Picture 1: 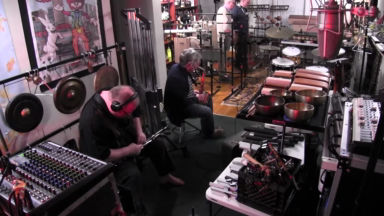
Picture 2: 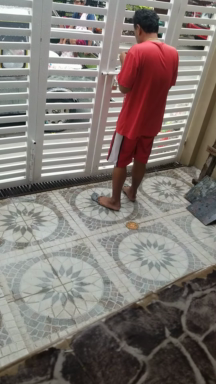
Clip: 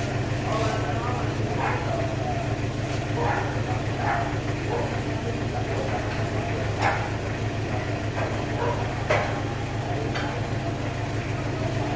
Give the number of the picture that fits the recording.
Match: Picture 2